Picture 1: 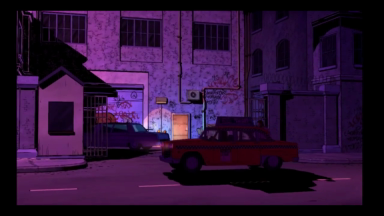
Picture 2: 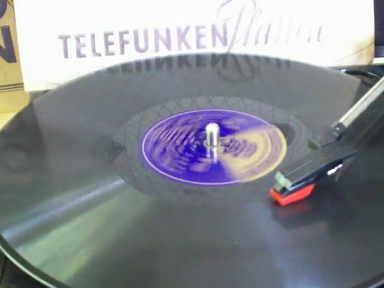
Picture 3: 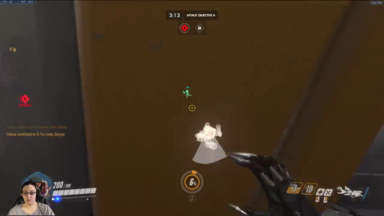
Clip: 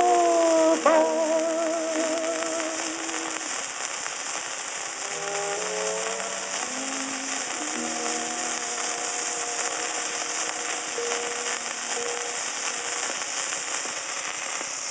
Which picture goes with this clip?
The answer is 2